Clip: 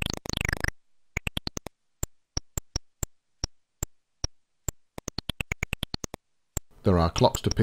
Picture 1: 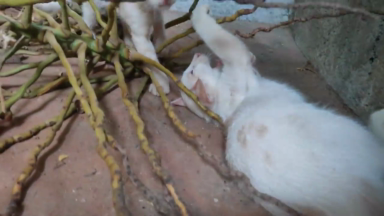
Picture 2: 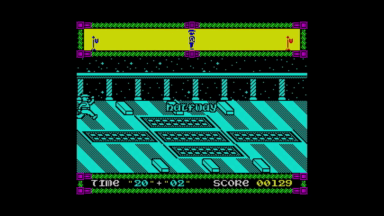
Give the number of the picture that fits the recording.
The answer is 2